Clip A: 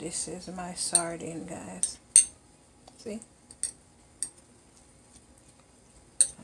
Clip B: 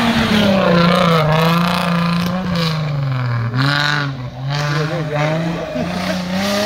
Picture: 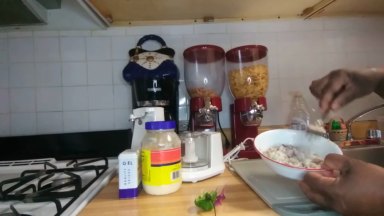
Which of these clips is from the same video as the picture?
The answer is A